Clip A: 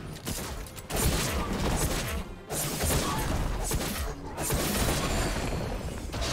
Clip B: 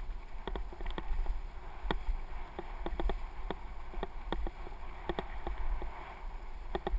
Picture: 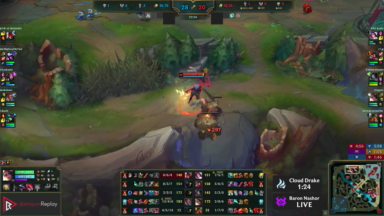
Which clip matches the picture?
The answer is A